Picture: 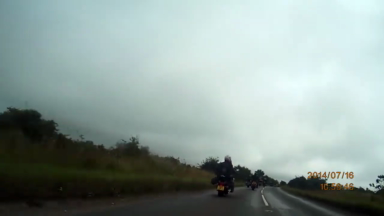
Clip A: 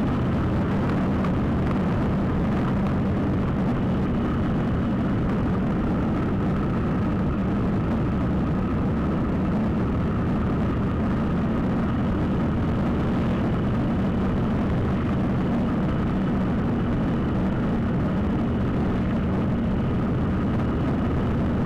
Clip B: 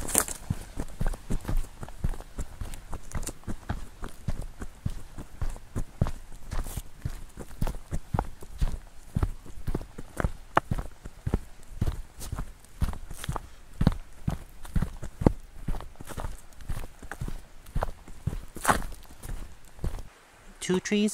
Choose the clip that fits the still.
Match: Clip A